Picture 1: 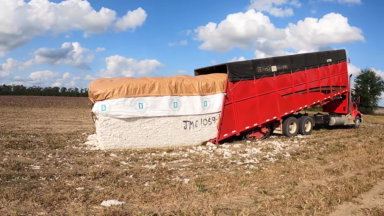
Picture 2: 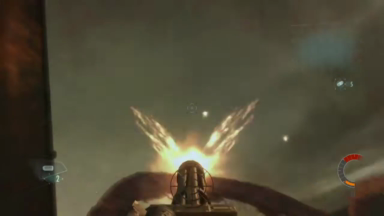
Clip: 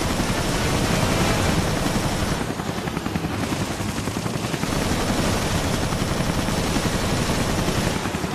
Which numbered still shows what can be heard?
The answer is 2